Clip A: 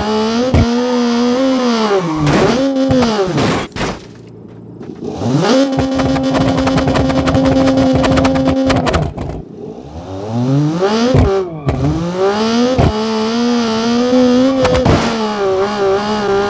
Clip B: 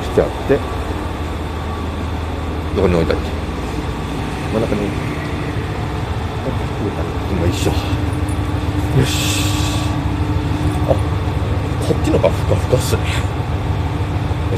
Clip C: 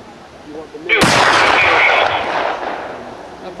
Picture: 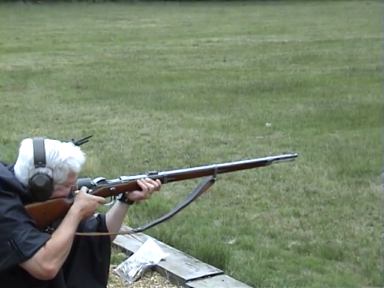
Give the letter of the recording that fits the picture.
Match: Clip C